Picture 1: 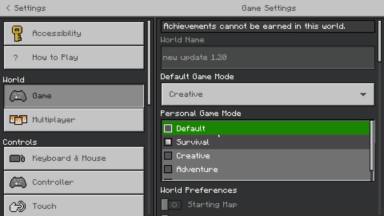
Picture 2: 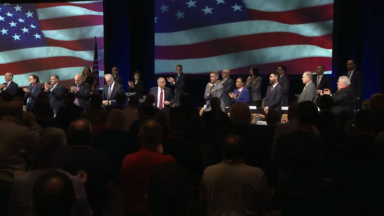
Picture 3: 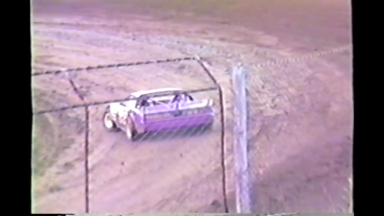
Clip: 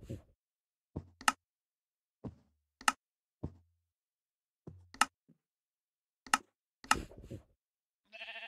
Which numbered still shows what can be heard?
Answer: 1